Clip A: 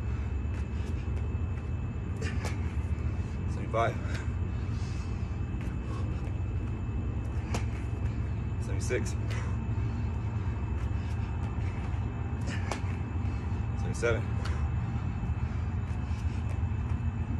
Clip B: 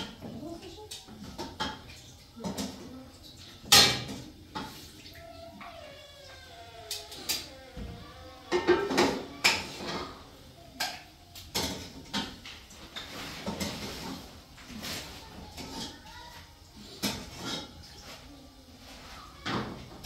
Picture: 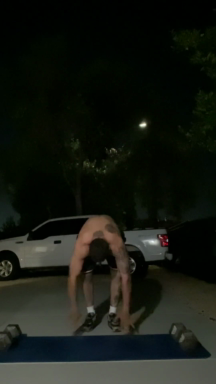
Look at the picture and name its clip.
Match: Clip A